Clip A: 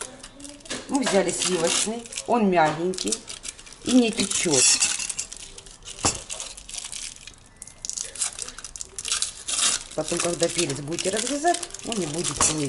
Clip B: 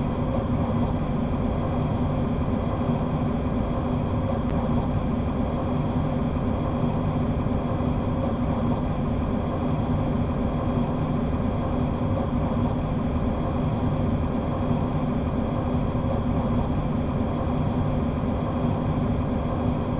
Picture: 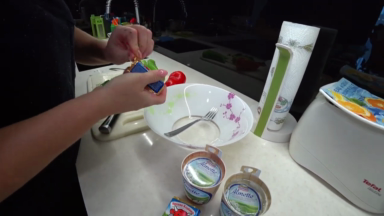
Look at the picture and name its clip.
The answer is A